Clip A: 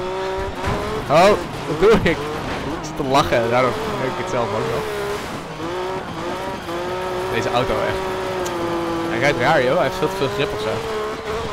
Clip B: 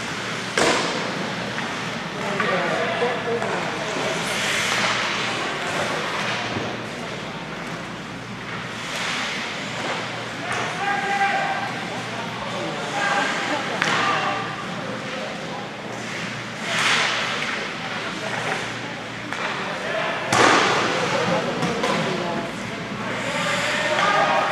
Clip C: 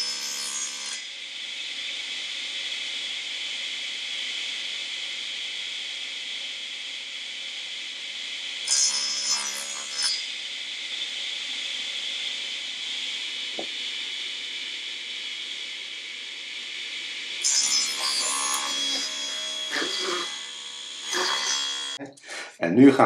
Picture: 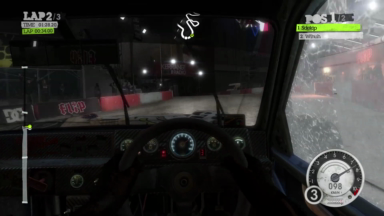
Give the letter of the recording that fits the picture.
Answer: A